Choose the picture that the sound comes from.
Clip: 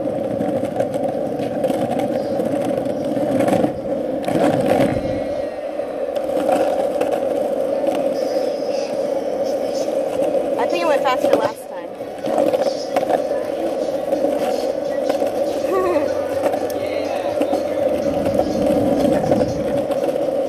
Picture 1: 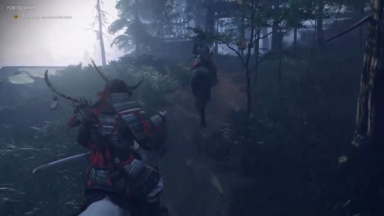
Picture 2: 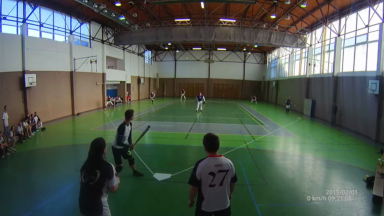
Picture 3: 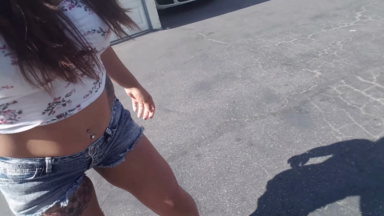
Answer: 3